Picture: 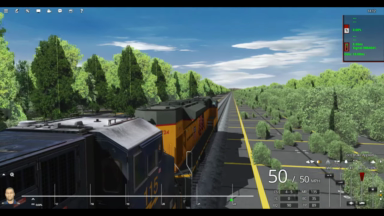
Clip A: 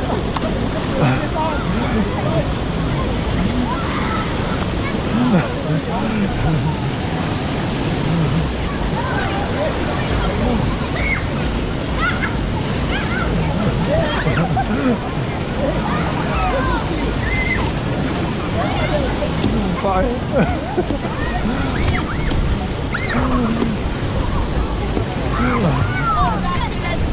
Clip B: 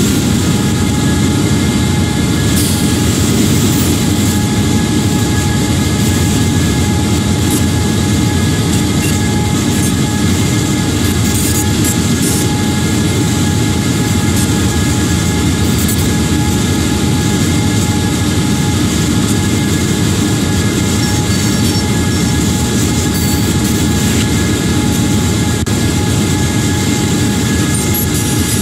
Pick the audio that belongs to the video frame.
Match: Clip B